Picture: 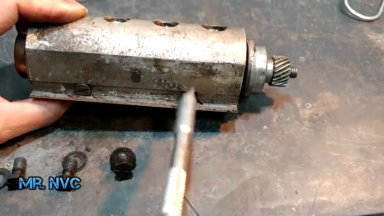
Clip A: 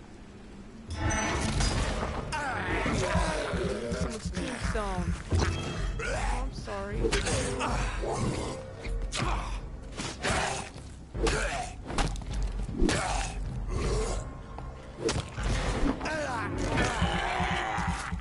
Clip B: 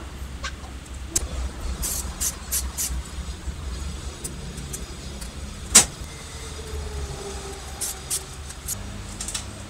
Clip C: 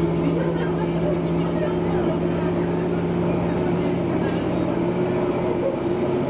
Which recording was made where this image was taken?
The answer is B